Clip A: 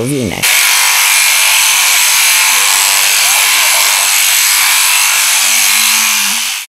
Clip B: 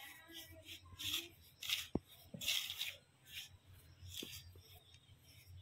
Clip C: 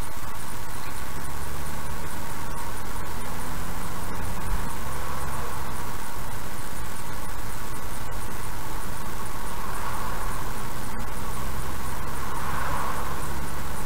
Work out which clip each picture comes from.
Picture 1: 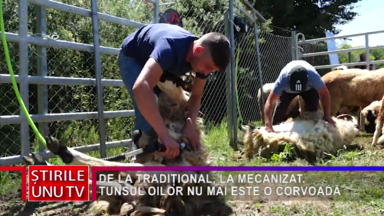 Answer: A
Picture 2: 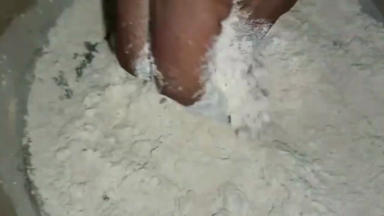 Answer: B